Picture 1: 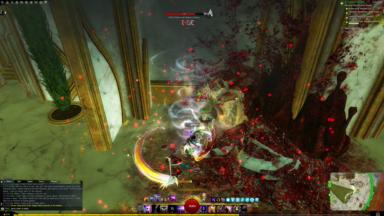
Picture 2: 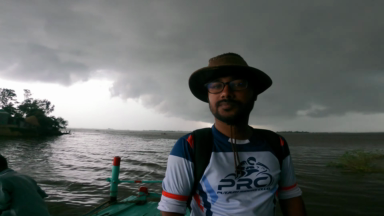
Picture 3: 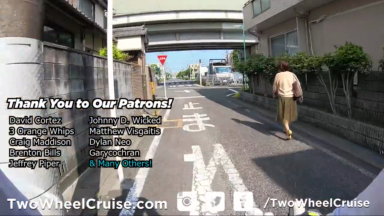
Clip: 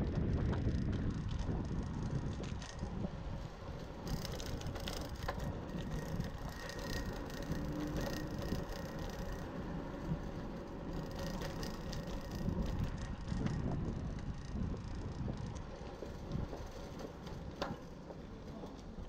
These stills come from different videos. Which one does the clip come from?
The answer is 3